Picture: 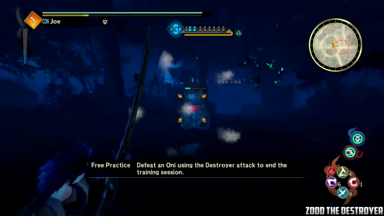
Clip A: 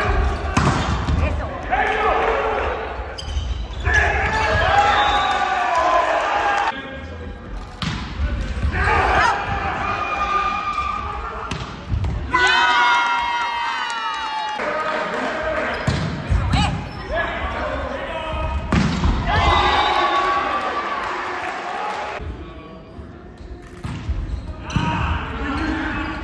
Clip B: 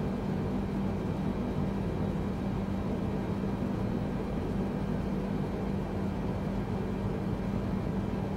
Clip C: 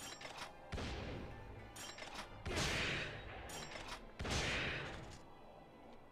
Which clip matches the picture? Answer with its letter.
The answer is C